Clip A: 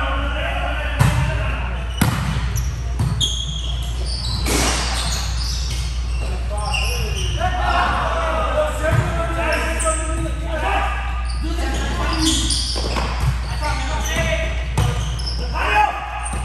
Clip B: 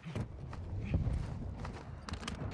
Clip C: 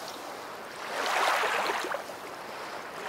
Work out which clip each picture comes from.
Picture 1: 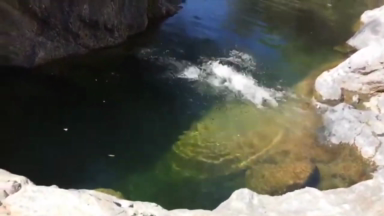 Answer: C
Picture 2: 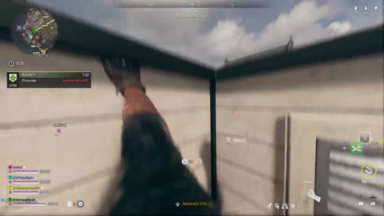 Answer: B